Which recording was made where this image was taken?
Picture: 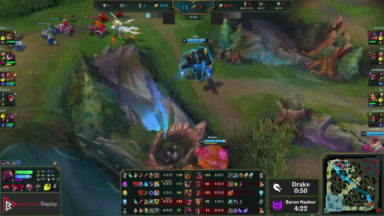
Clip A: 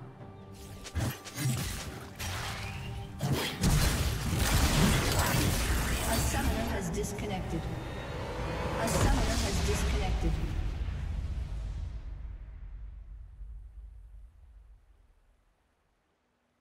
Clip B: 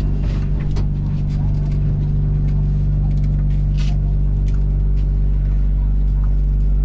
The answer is A